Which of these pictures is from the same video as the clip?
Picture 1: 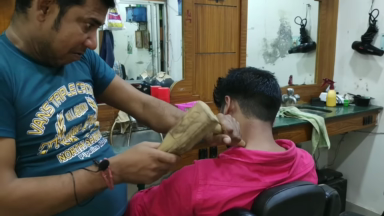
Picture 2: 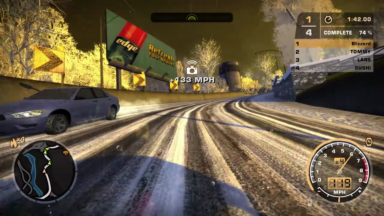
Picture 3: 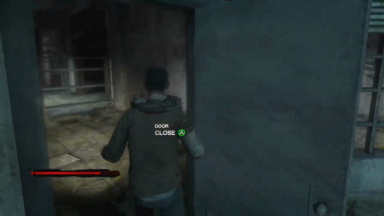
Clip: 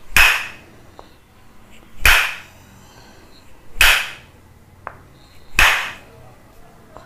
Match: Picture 1